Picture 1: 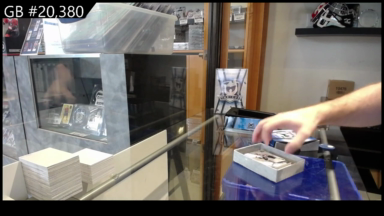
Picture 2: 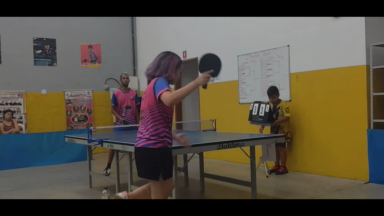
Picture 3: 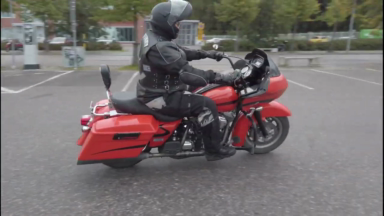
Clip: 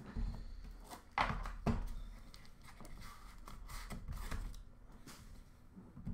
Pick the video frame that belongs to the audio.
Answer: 1